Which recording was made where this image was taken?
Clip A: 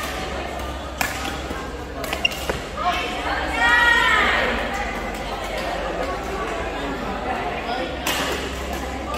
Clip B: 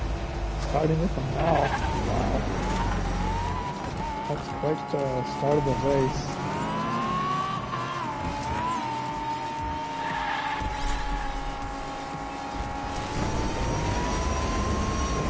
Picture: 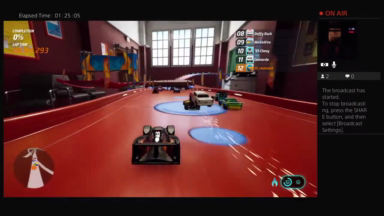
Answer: B